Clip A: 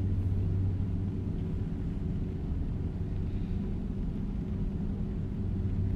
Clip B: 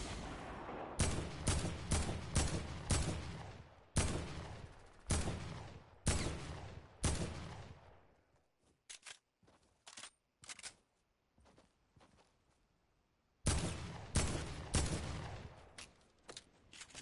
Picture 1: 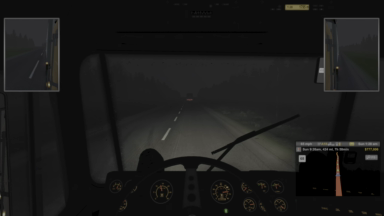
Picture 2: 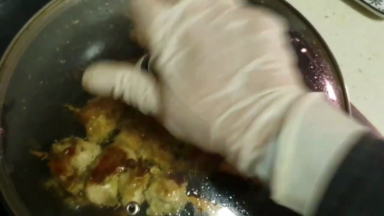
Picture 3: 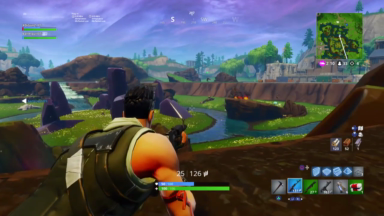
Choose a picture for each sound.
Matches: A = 1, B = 3